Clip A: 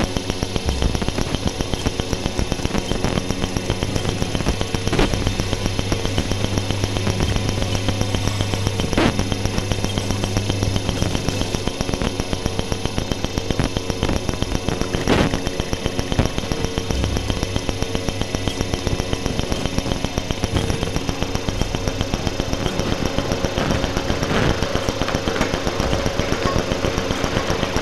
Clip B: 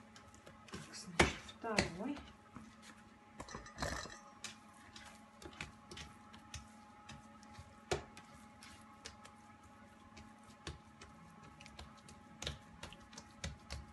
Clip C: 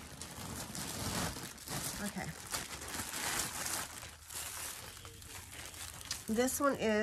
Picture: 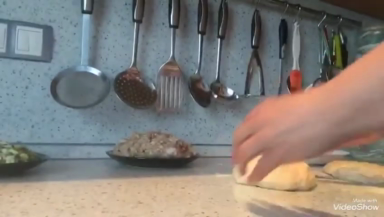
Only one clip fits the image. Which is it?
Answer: B